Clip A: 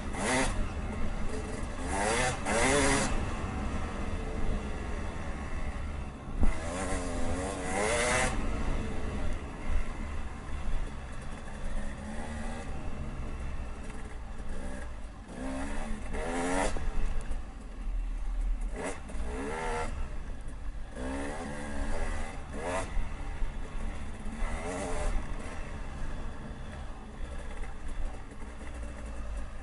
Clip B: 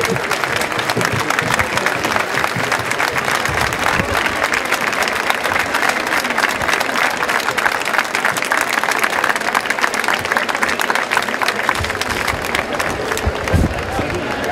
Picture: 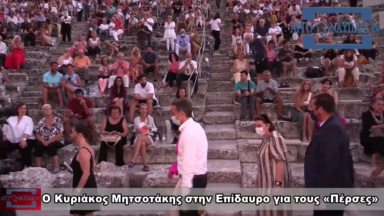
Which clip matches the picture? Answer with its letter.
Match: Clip B